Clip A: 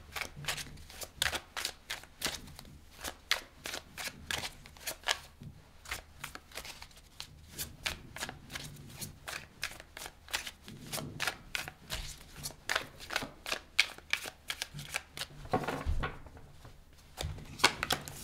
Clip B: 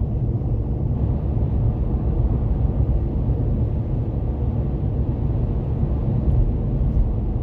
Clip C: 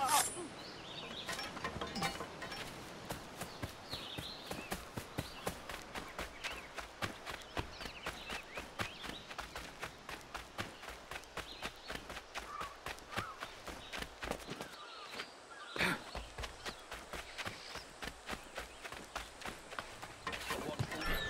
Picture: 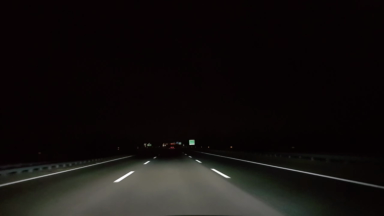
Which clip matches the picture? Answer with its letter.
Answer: B